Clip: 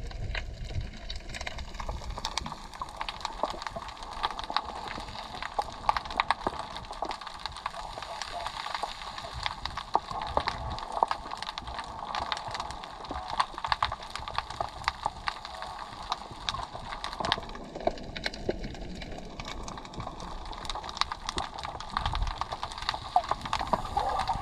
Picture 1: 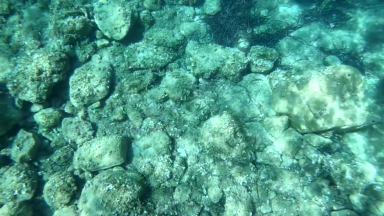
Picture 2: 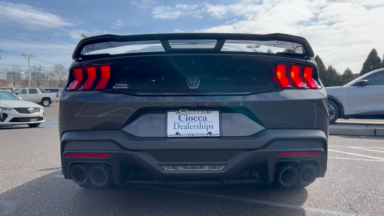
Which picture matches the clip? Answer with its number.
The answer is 1